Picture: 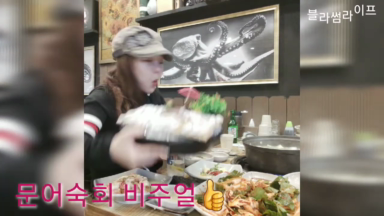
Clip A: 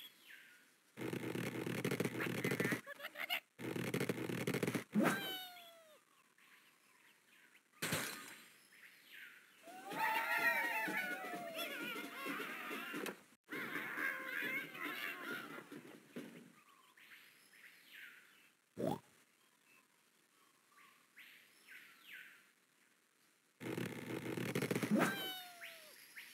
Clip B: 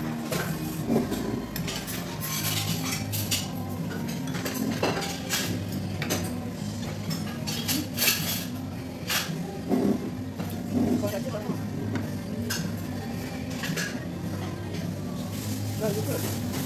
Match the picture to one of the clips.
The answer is B